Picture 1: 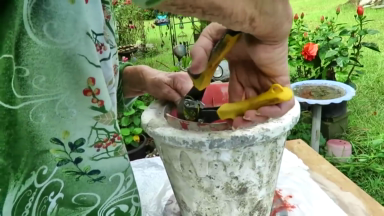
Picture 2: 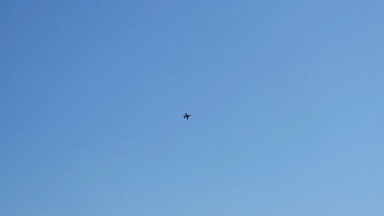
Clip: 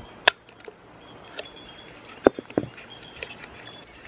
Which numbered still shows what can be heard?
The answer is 1